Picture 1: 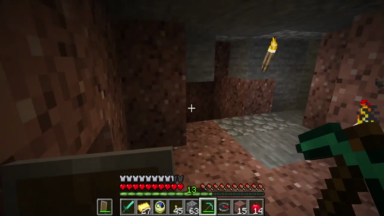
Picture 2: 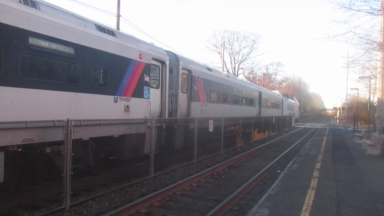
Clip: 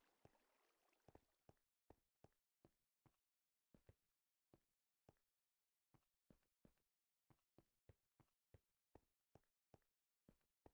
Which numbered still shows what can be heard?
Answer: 1